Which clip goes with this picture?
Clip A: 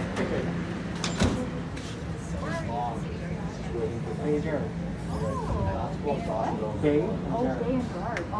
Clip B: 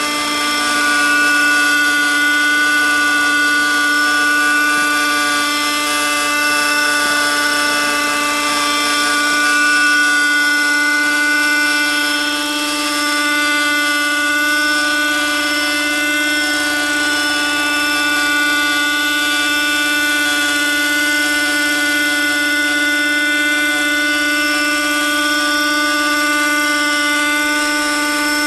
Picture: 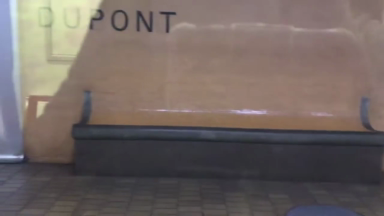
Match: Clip A